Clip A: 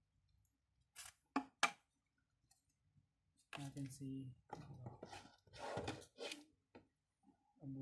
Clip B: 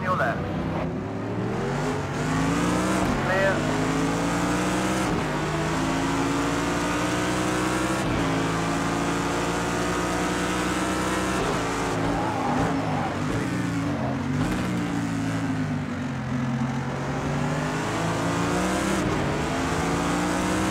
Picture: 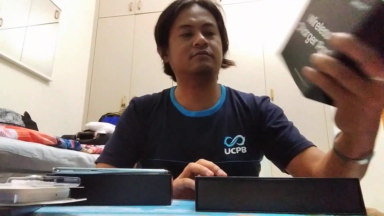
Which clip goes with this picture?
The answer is A